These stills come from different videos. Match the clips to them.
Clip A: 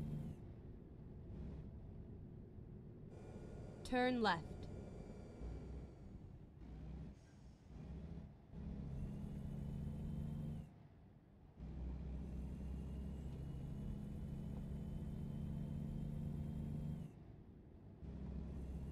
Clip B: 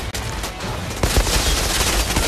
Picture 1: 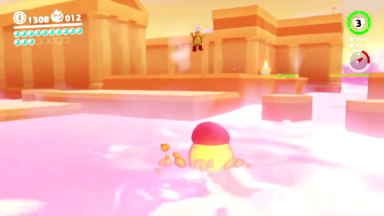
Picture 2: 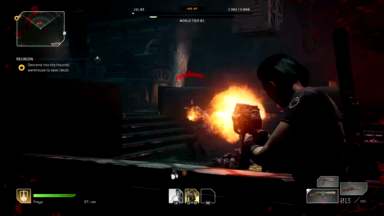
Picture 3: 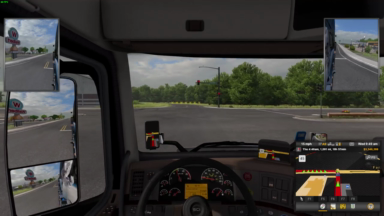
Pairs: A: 3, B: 2